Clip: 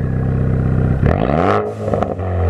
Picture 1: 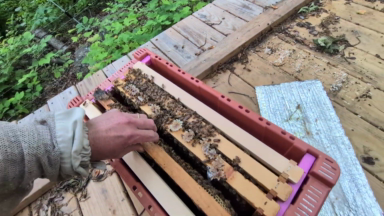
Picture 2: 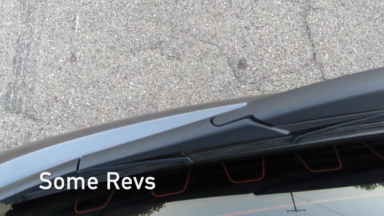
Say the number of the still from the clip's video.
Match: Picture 2